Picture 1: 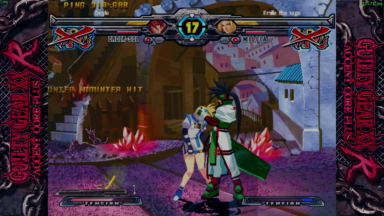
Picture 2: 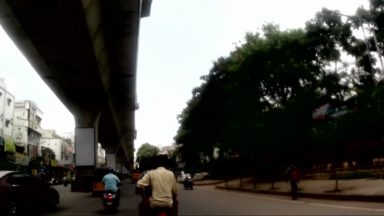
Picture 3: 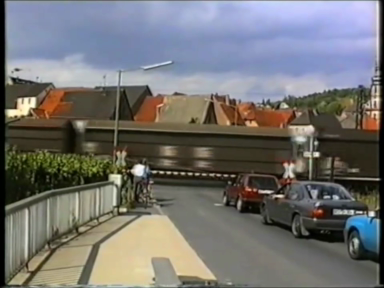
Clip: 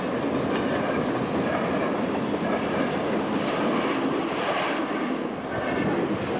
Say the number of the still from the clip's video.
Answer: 3